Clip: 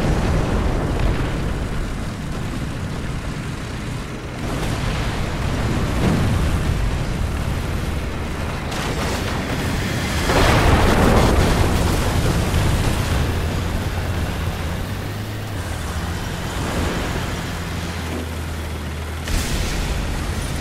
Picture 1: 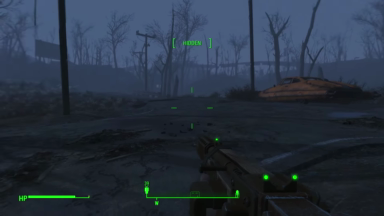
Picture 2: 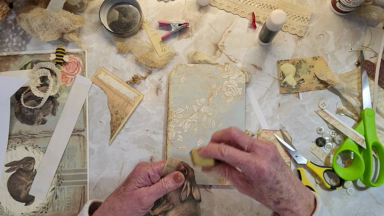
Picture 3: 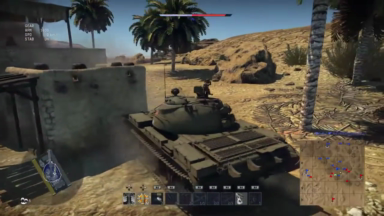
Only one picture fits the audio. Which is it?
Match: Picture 3